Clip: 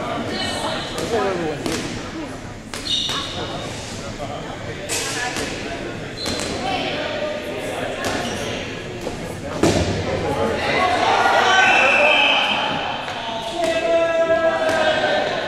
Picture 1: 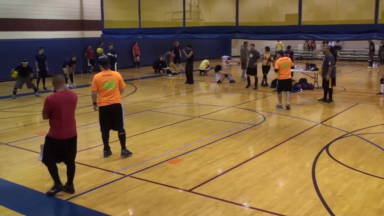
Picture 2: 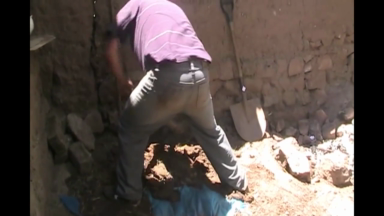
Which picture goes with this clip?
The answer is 1